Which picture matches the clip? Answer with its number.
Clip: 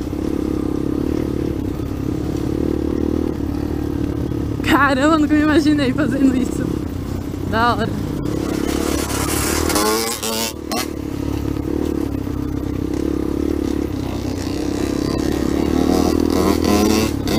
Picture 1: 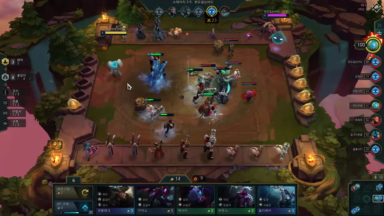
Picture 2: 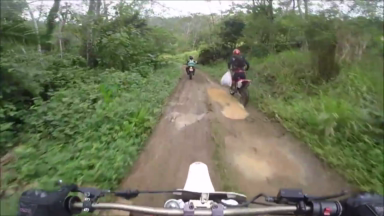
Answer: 2